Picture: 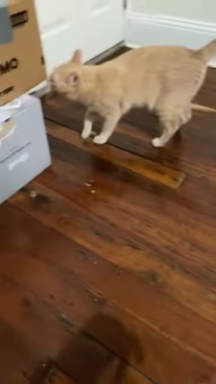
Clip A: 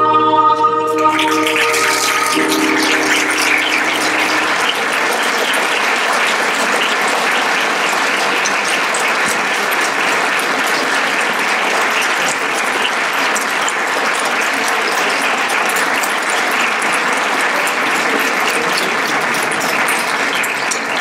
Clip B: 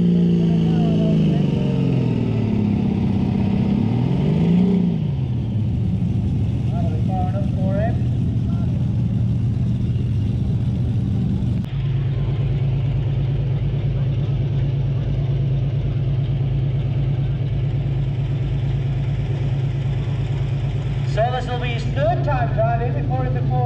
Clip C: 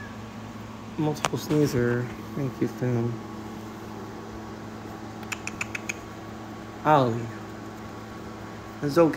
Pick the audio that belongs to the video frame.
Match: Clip C